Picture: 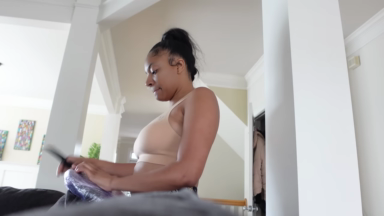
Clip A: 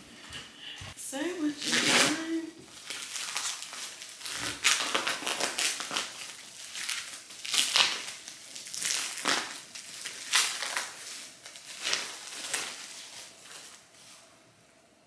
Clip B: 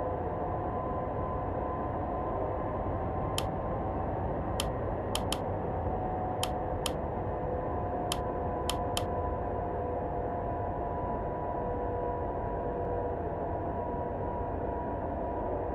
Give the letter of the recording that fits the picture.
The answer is A